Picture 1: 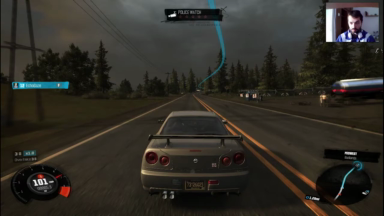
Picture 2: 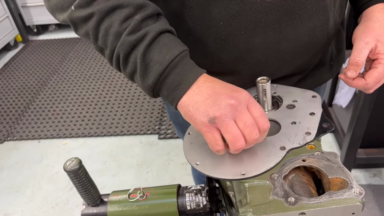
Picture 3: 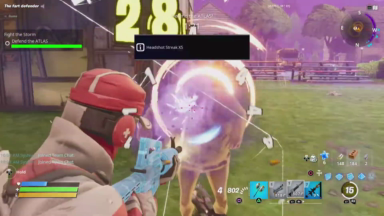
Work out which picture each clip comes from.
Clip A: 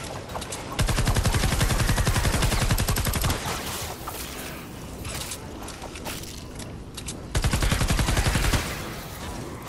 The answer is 3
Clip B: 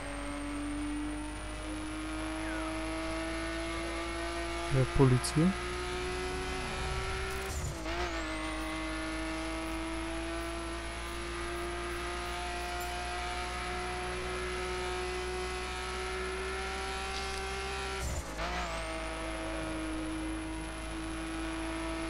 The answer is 1